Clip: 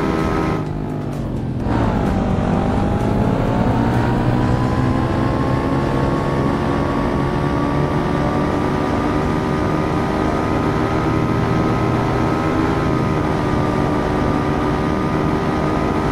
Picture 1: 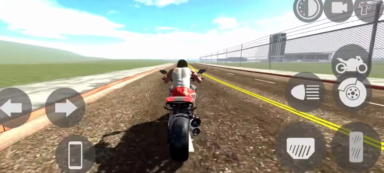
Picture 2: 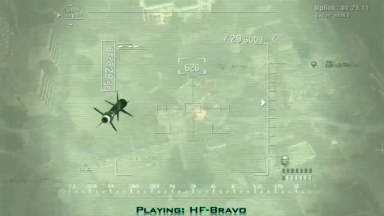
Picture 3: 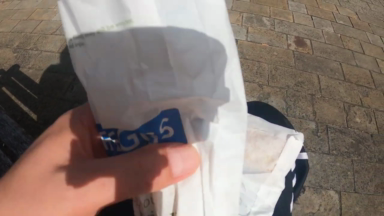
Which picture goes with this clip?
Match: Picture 1